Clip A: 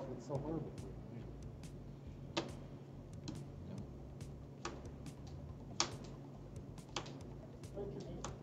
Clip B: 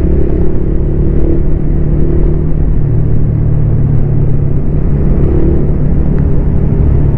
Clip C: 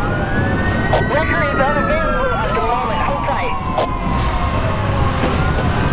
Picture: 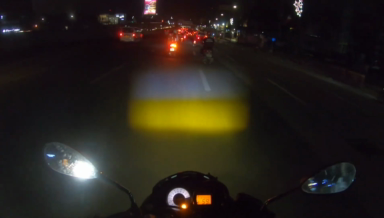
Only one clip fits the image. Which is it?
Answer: B